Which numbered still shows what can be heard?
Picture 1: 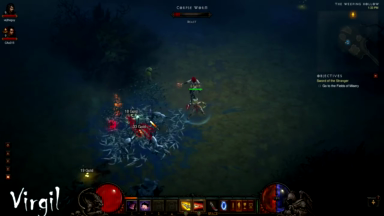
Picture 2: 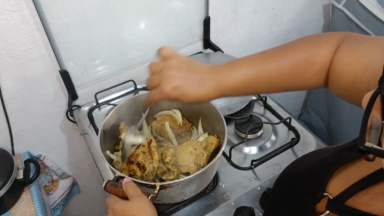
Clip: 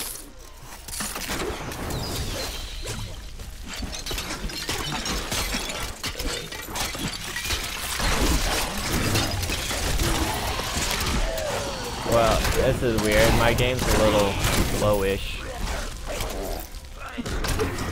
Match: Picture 1